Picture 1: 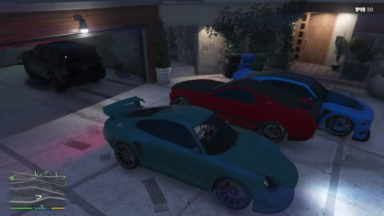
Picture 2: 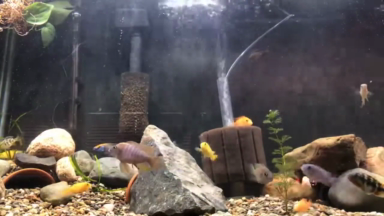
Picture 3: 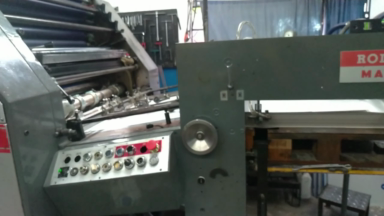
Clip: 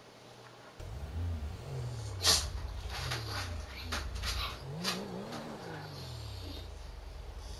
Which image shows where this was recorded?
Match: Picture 1